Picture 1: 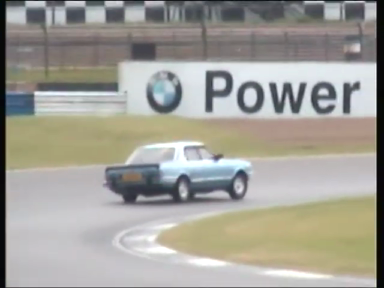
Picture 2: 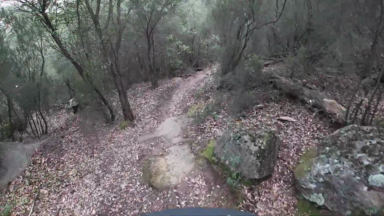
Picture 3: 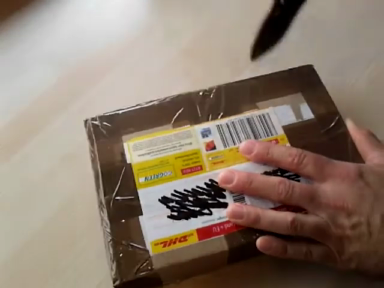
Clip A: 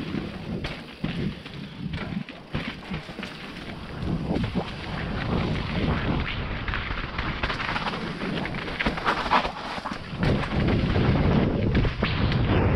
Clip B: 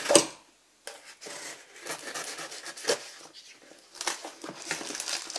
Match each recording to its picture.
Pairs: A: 2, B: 3